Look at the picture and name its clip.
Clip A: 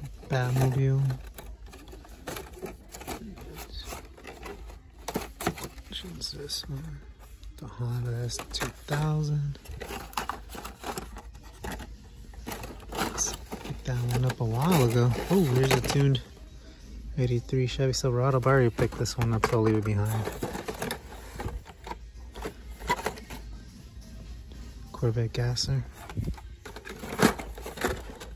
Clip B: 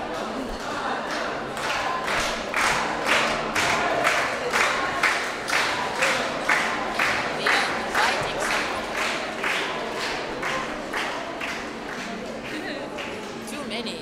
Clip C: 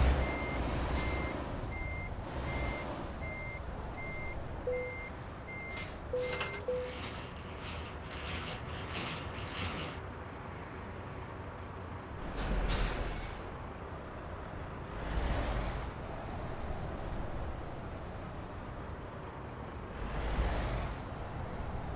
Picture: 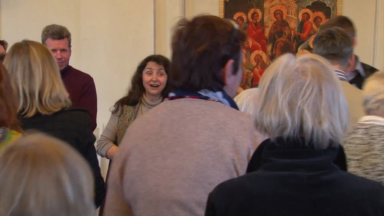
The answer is B